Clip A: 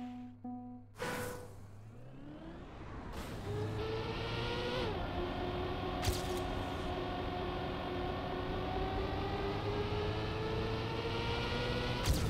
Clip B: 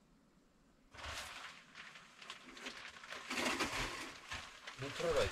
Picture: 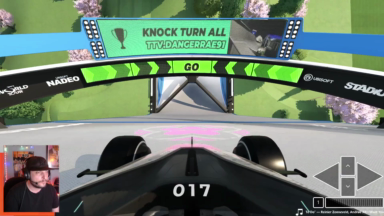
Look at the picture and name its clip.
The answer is A